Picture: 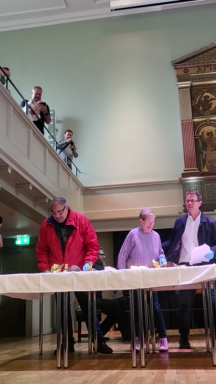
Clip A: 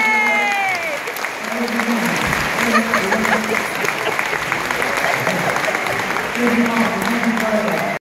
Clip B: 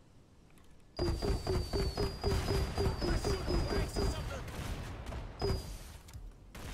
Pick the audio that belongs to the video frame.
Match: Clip A